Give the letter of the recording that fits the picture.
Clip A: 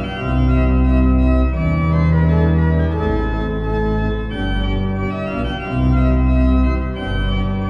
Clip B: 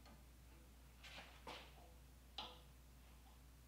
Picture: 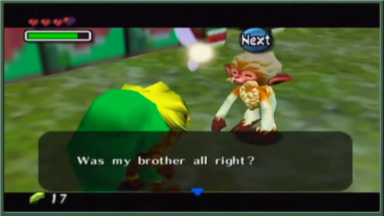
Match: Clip A